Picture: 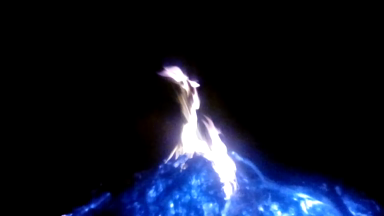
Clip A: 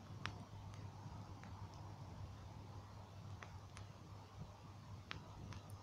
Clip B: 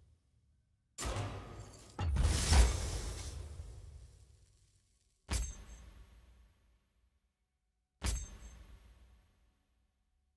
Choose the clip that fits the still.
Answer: A